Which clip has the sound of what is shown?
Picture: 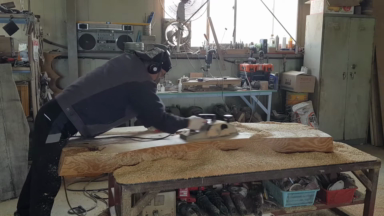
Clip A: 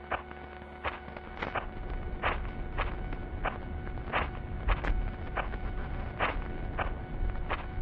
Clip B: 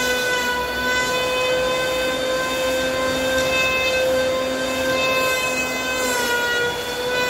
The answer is B